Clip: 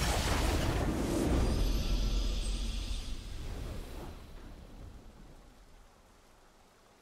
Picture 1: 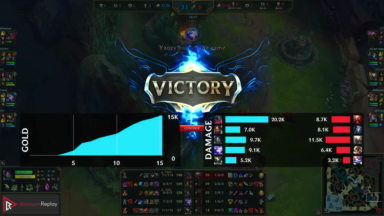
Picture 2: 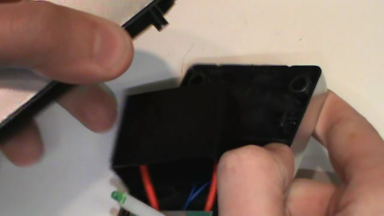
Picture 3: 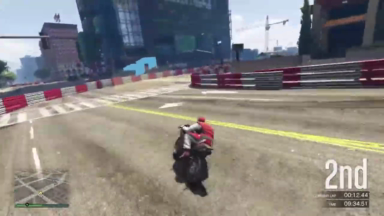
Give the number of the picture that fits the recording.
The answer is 1